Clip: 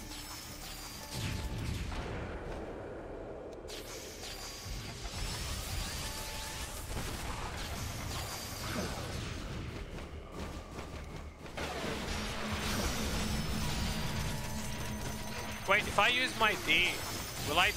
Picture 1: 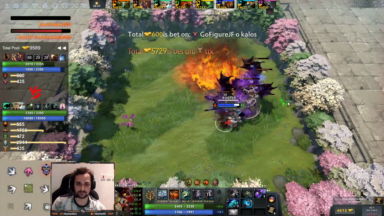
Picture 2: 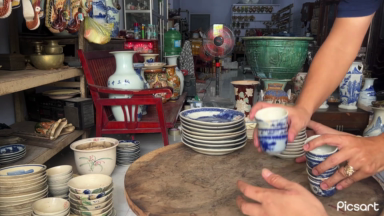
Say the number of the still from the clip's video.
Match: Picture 1